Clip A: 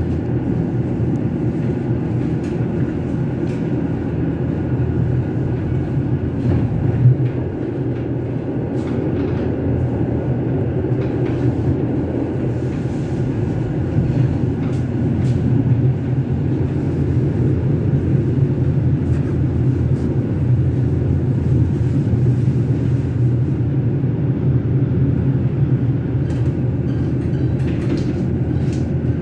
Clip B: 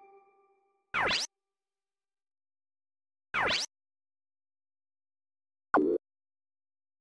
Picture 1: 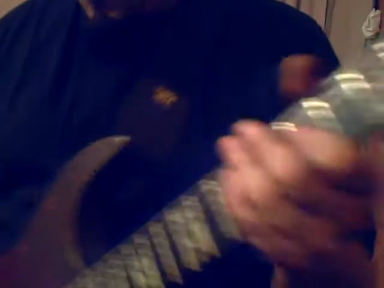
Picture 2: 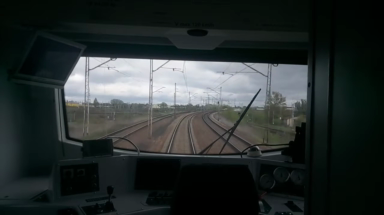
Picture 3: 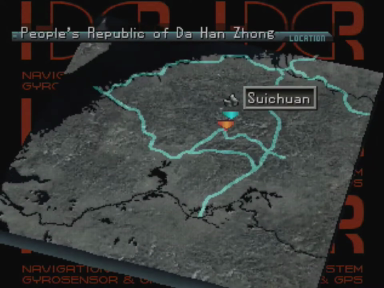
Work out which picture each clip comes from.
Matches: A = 2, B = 3